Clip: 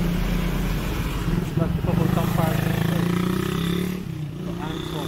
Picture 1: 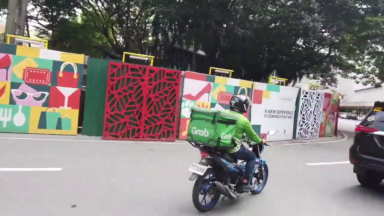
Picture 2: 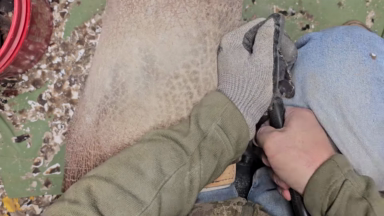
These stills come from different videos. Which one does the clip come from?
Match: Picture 1